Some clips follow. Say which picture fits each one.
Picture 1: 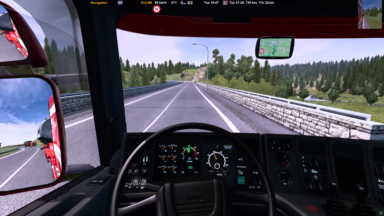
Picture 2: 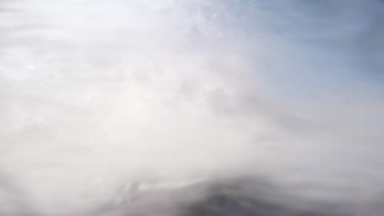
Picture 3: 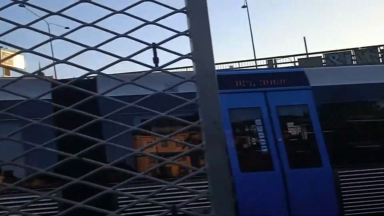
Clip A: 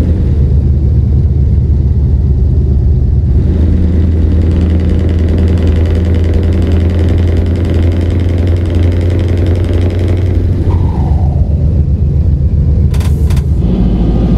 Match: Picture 1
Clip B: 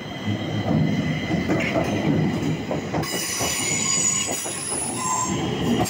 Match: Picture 3